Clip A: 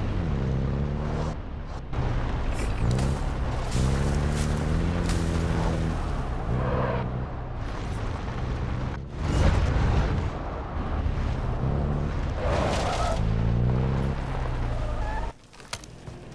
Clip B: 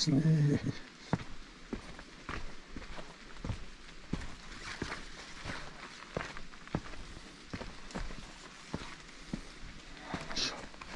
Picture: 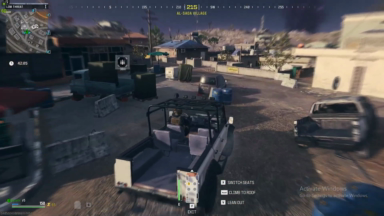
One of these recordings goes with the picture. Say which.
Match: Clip A